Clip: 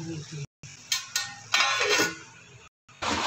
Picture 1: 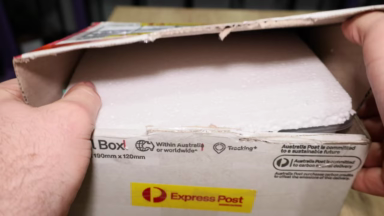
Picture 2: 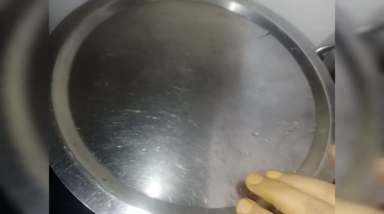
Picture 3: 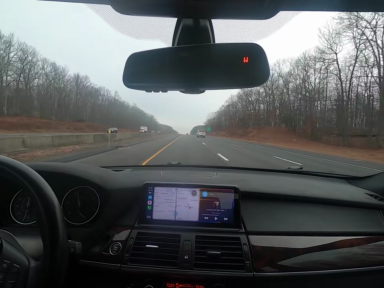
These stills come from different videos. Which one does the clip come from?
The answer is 2